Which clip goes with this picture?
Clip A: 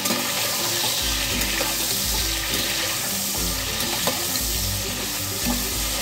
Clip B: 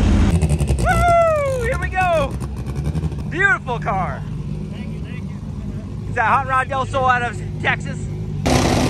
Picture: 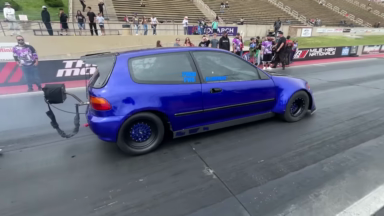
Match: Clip B